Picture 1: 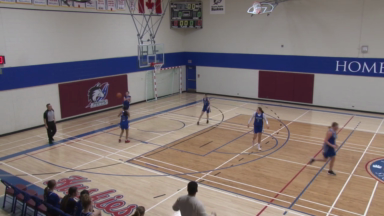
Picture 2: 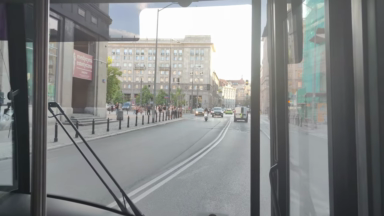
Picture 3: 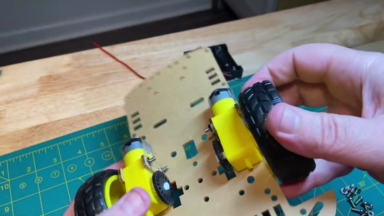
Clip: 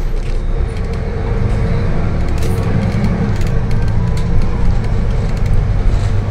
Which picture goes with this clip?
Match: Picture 2